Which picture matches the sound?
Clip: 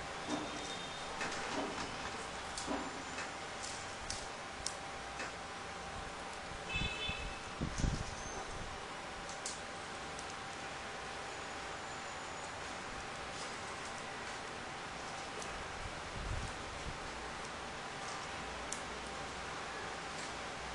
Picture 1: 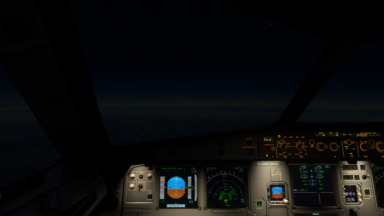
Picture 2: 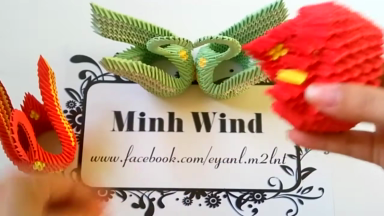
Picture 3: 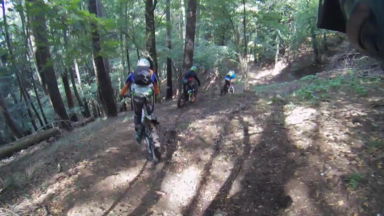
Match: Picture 2